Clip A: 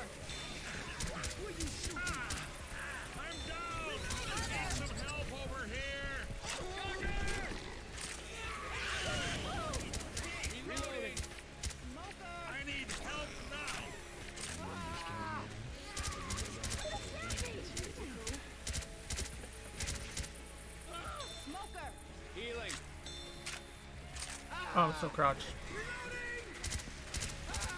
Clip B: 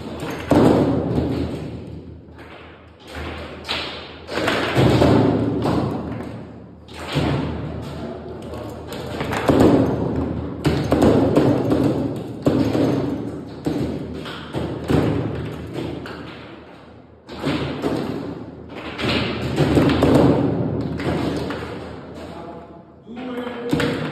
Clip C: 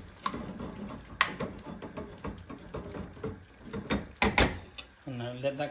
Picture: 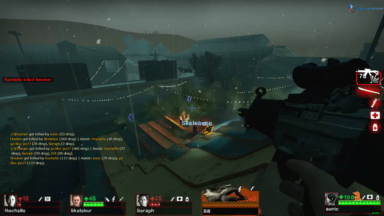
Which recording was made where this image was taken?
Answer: A